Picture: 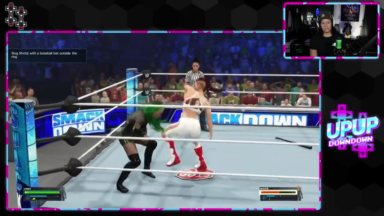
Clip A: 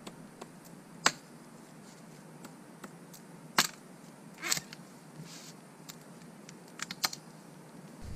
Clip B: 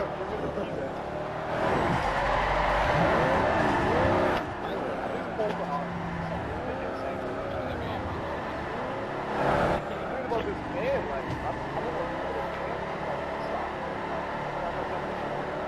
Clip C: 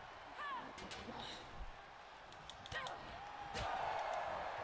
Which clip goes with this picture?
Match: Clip C